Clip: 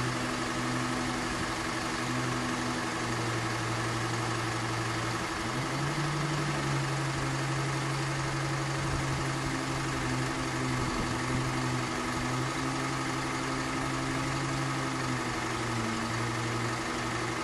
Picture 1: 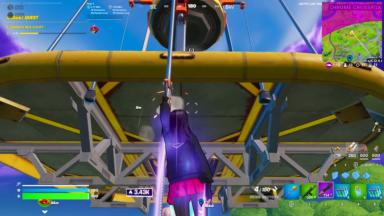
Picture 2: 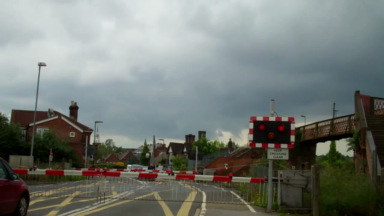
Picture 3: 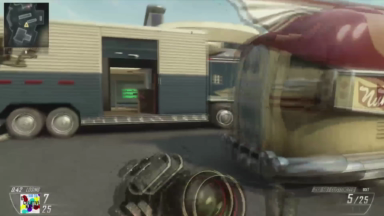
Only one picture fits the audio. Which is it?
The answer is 2